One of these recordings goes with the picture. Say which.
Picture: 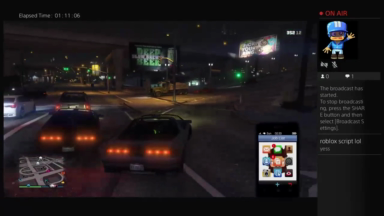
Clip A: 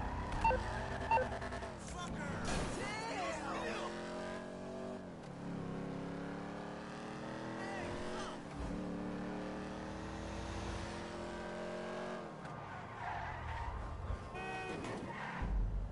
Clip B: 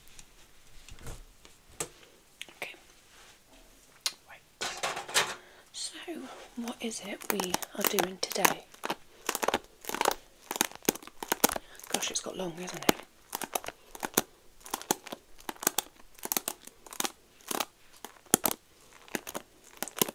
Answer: A